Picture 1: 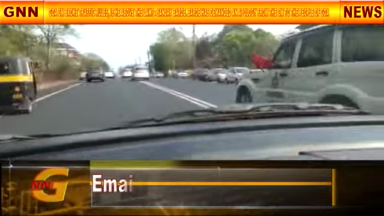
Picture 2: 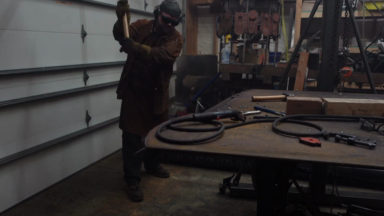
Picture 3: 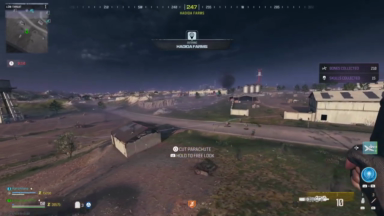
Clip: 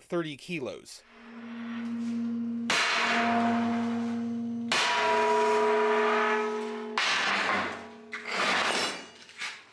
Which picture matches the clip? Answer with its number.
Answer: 2